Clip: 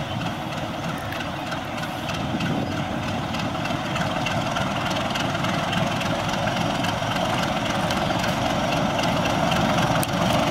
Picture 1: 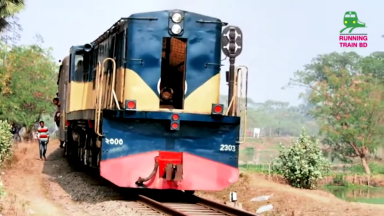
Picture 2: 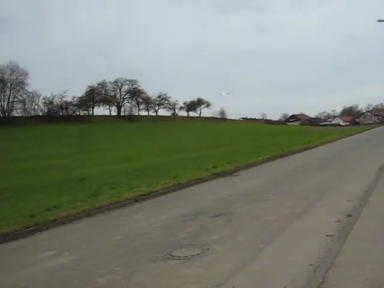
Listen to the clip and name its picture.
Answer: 1